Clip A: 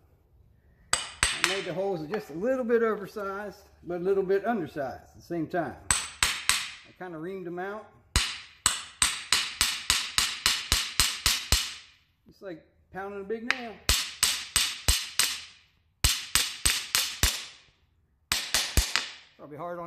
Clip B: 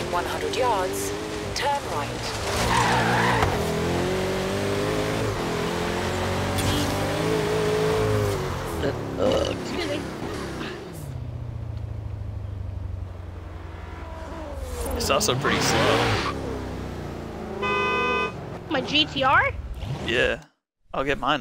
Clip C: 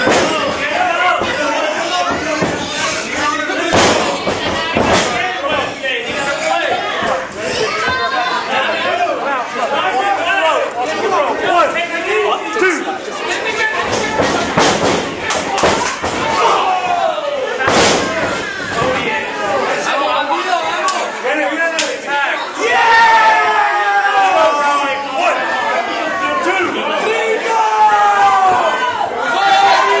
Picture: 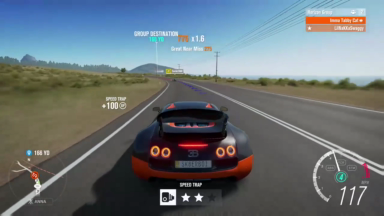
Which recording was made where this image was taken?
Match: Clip B